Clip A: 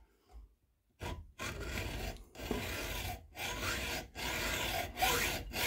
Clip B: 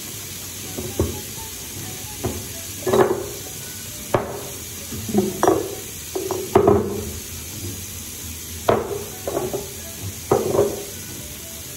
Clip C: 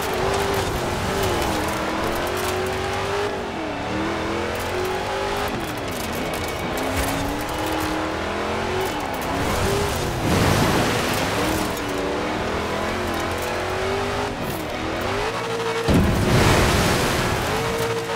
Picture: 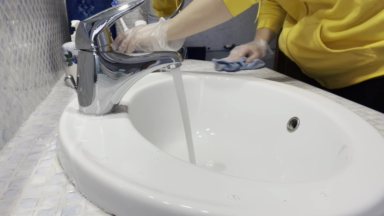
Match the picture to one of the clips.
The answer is B